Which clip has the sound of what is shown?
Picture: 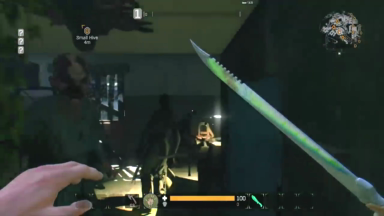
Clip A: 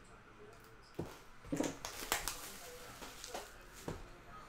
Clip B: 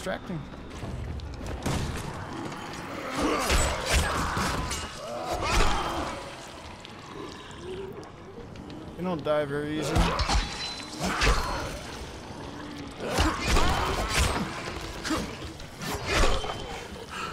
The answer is B